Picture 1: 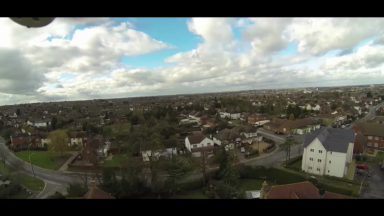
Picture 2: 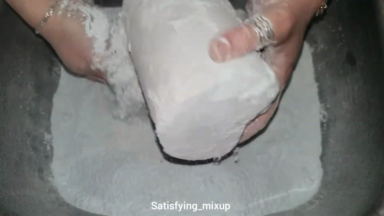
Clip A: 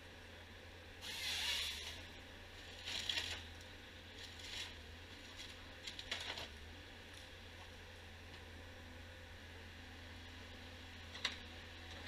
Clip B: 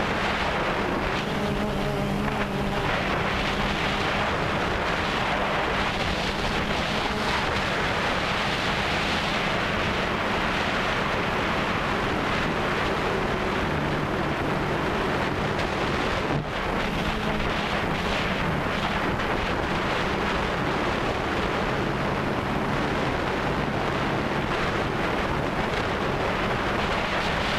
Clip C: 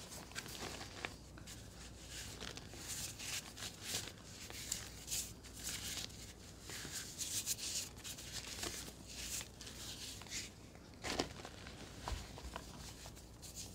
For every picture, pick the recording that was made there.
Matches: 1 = B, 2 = C